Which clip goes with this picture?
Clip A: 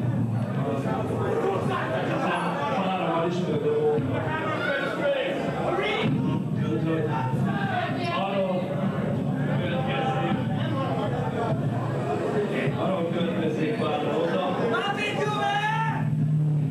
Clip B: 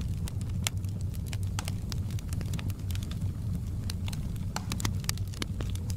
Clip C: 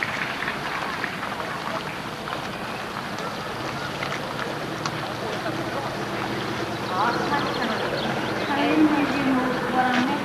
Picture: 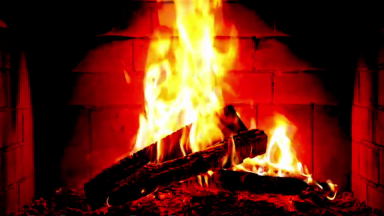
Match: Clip B